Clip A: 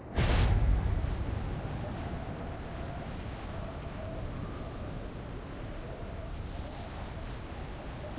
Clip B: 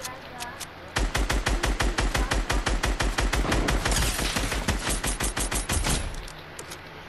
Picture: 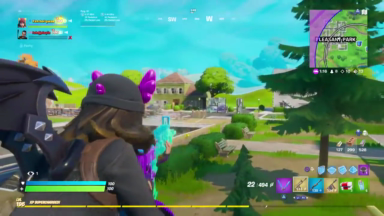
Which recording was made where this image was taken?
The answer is B